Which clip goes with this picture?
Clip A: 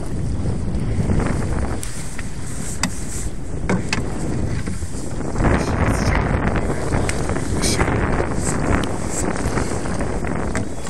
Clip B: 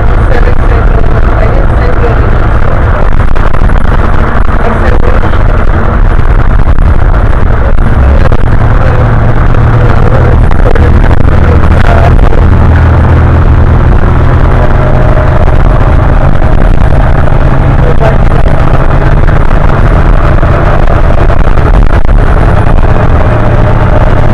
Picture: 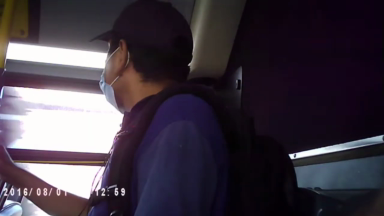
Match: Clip B